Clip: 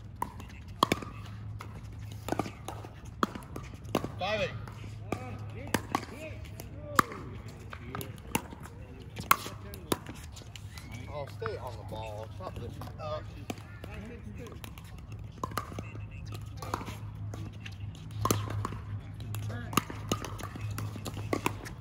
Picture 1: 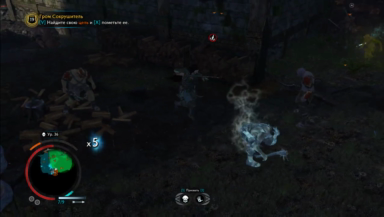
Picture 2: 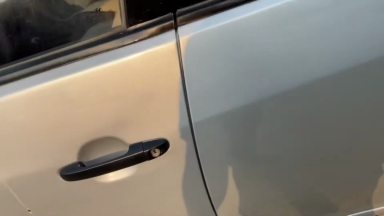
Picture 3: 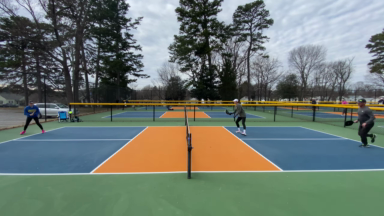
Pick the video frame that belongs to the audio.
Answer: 3